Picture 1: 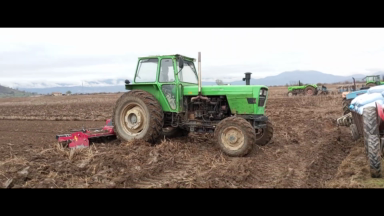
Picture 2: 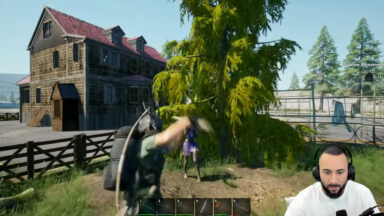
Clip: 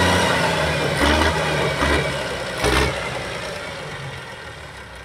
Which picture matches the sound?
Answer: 1